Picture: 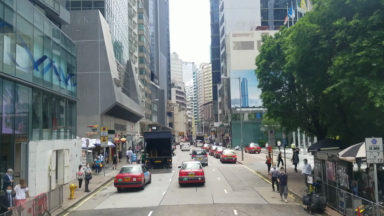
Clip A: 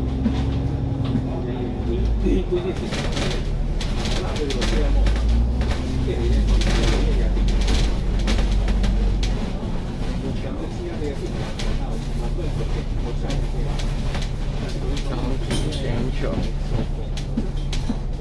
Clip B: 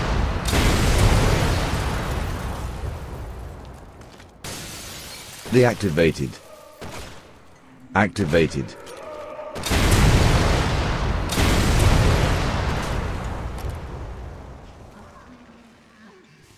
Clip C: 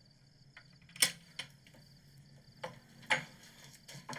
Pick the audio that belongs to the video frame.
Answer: A